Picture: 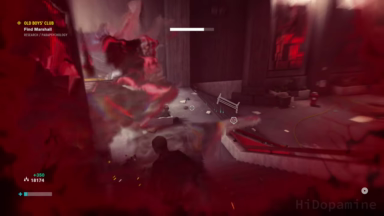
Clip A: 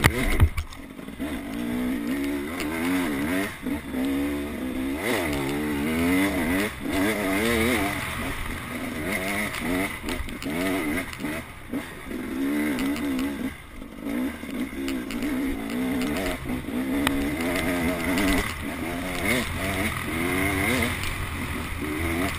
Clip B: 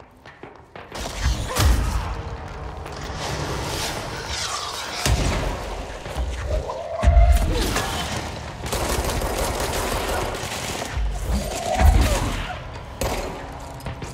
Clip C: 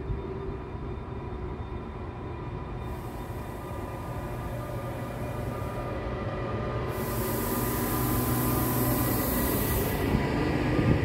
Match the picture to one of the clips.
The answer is B